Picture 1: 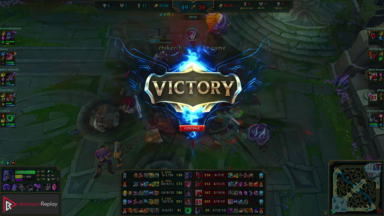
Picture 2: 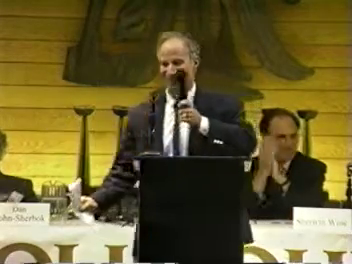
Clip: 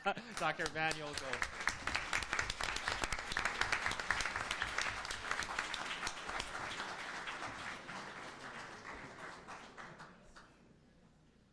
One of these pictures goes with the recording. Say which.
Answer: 2